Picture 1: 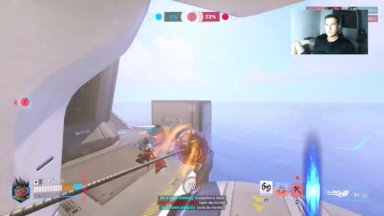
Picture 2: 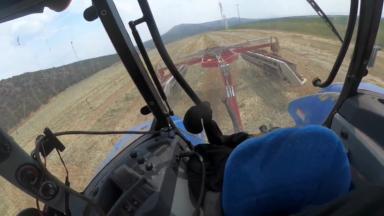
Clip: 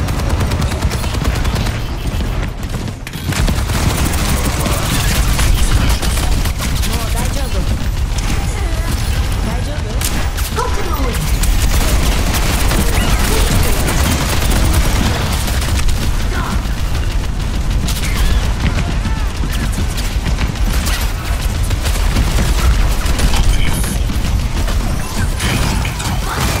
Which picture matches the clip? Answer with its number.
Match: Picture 1